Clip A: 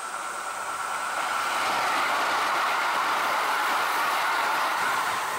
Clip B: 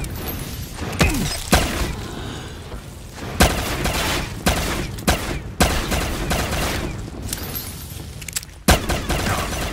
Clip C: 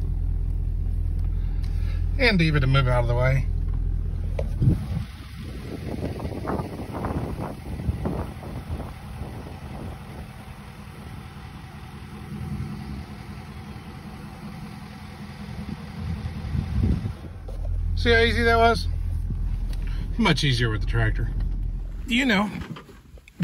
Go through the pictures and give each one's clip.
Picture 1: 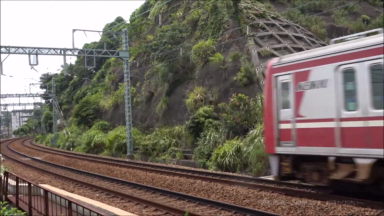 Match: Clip A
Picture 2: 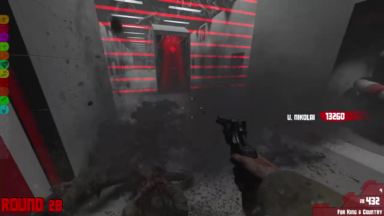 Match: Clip B